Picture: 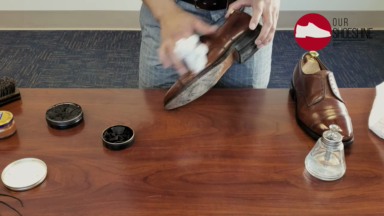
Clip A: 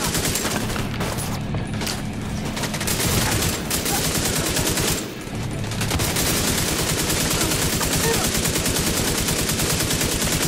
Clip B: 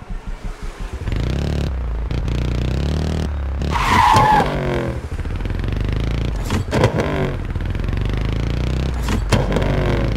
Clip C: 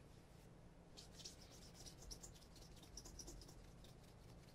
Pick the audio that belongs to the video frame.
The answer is C